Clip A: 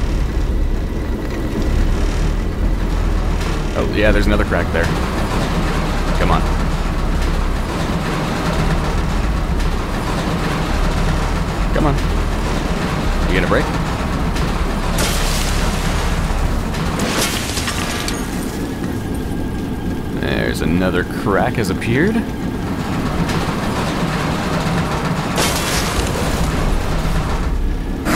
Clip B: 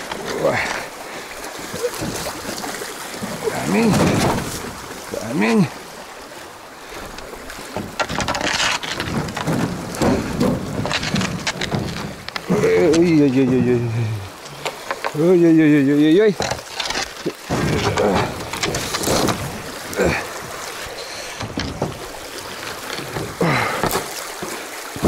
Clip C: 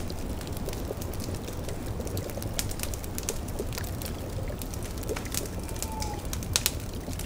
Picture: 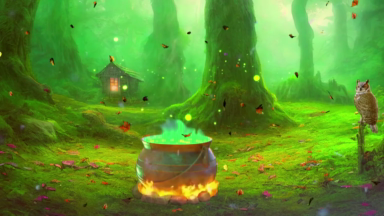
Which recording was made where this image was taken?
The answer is C